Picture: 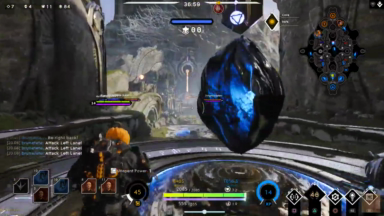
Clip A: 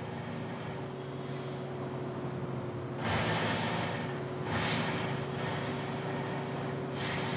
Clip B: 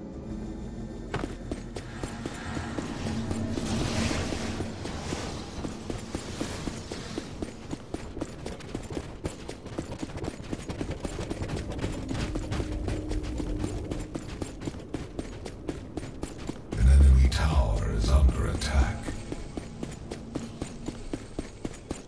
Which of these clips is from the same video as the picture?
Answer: B